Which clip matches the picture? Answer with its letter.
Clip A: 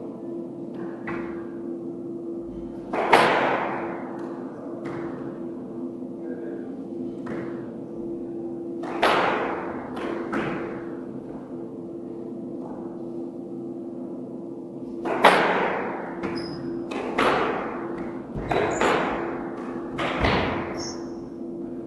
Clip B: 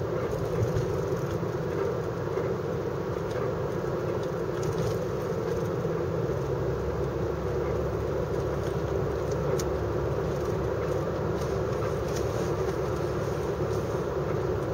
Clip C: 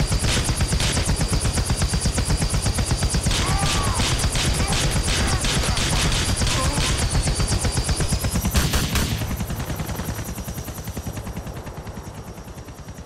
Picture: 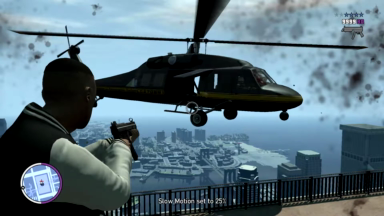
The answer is C